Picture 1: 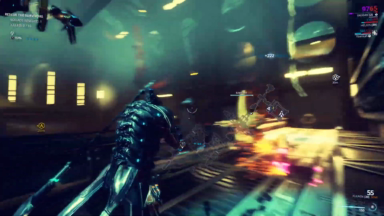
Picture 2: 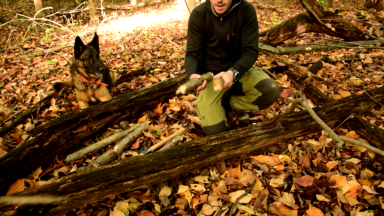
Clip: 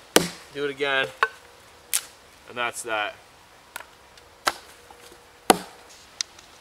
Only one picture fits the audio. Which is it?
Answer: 2